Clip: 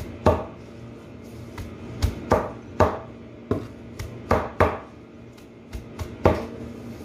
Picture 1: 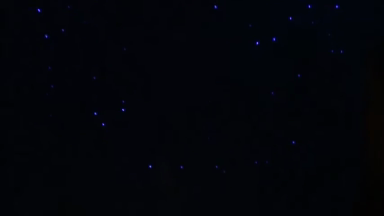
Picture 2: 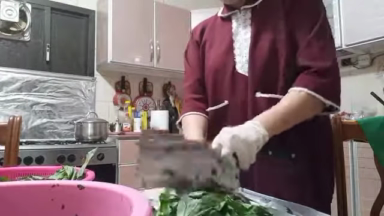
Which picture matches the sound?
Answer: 2